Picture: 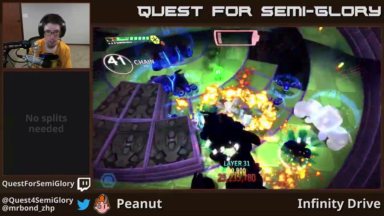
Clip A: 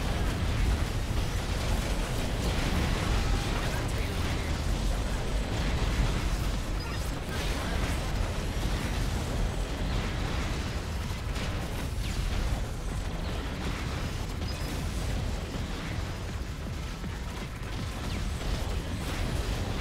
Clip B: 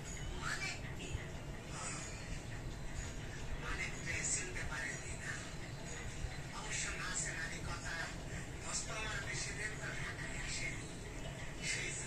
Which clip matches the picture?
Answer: A